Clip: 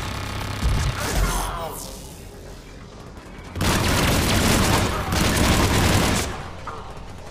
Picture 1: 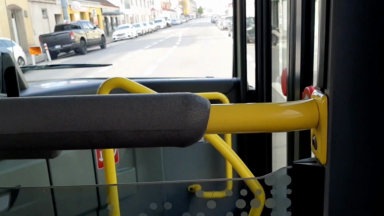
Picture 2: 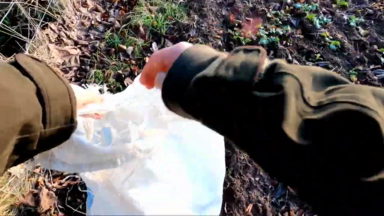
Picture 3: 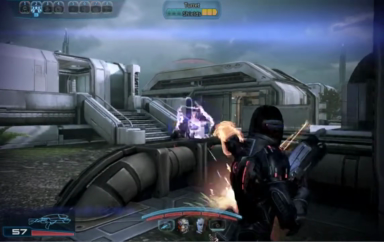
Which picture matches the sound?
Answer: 3